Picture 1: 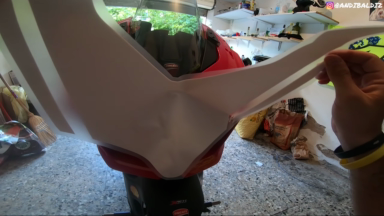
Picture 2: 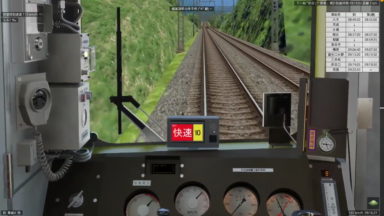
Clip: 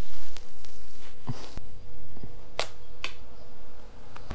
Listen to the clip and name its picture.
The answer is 1